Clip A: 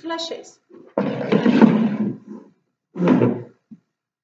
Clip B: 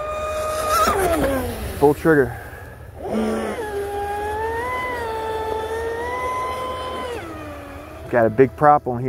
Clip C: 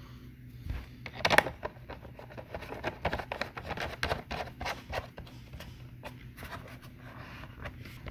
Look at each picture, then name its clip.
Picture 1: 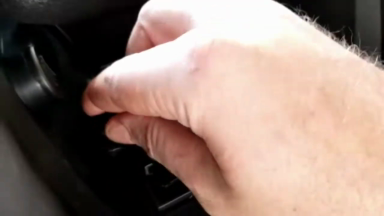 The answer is C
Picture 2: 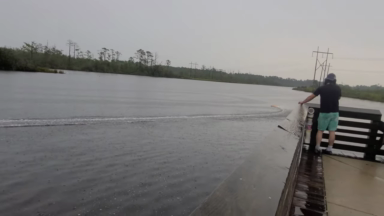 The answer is B